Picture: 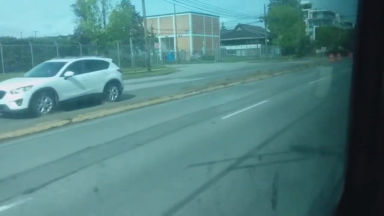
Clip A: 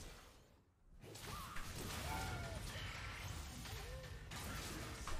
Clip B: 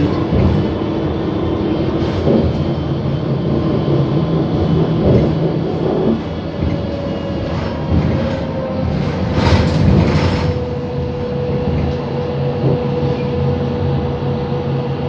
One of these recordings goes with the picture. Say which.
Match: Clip B